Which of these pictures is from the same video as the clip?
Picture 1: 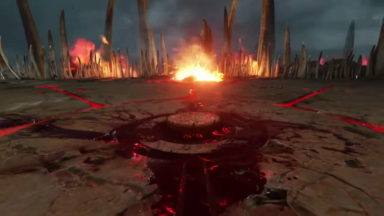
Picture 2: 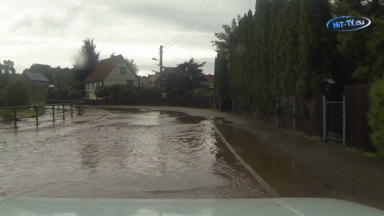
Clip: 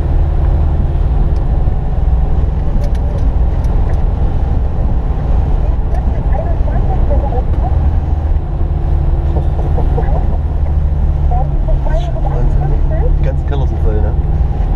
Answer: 2